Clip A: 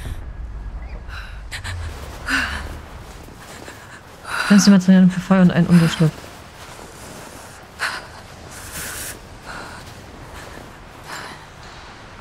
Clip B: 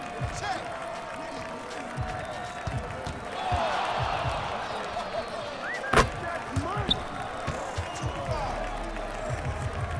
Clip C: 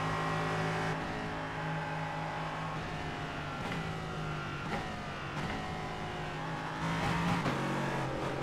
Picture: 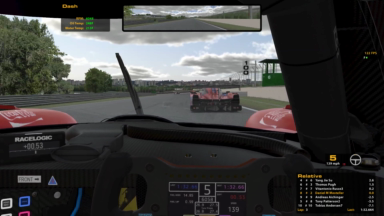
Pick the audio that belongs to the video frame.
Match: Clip C